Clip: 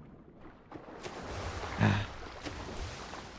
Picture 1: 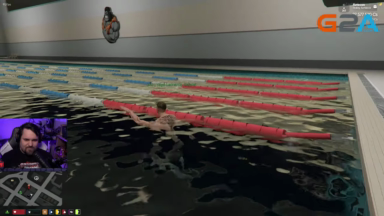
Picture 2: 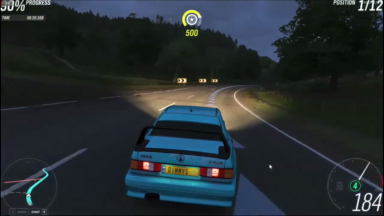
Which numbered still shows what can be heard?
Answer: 1